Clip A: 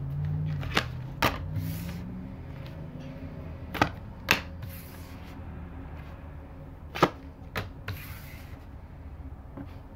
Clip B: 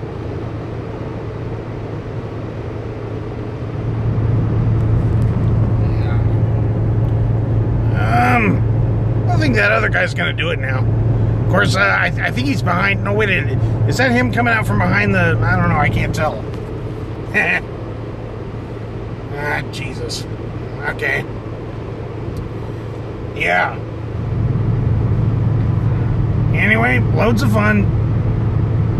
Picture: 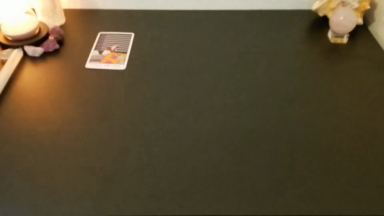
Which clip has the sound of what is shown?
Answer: A